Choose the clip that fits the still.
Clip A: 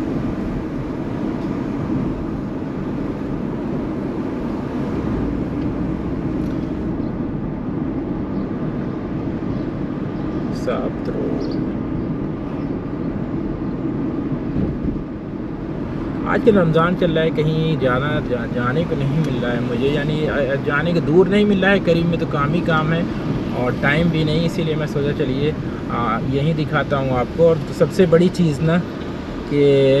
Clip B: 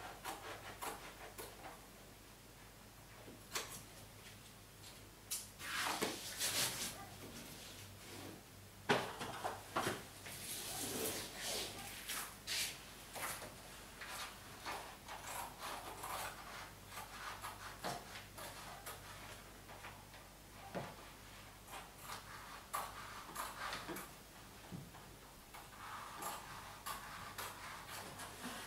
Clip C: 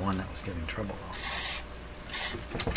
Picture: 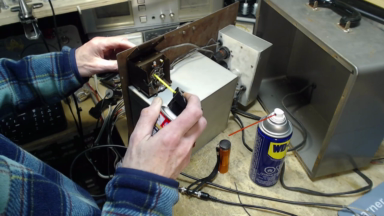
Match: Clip C